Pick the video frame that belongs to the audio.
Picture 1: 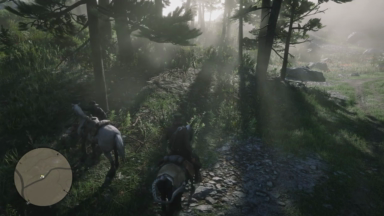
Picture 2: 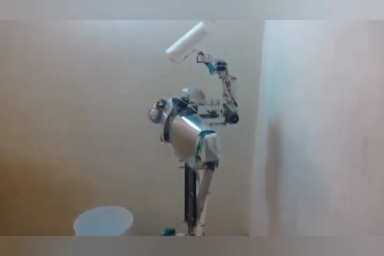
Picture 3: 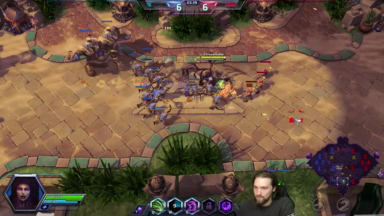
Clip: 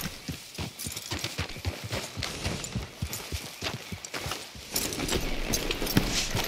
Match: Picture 1